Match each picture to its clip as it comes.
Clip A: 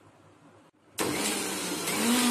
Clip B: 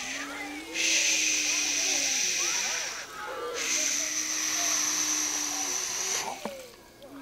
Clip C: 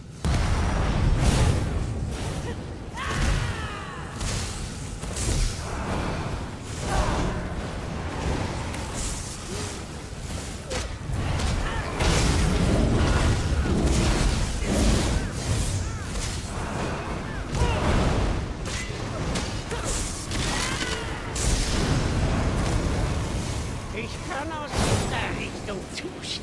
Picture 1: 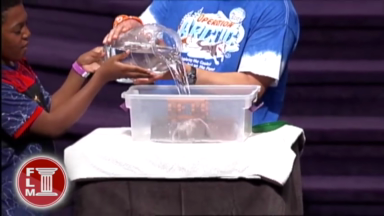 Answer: B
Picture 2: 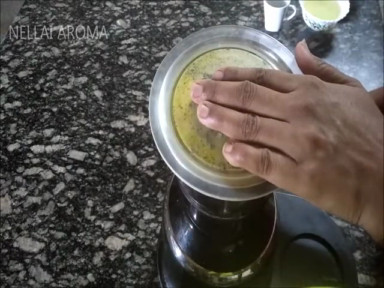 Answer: A